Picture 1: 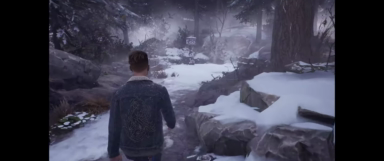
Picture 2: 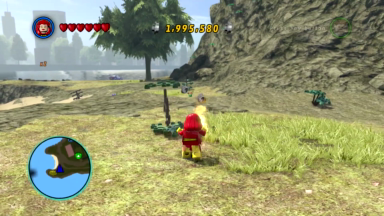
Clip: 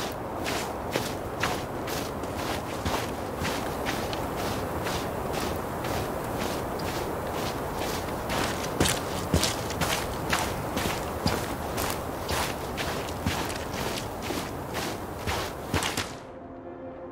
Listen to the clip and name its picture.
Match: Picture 1